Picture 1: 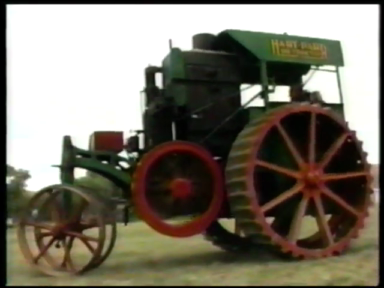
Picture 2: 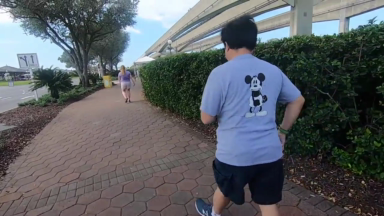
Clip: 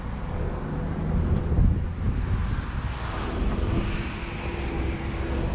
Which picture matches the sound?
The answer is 2